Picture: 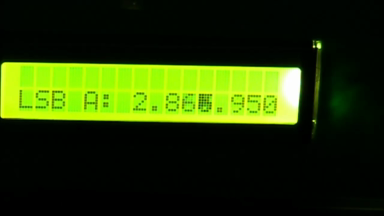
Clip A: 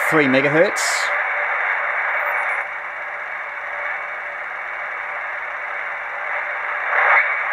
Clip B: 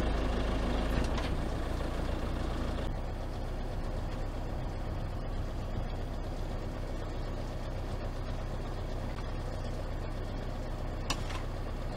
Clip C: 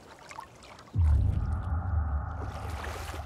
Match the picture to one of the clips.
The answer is A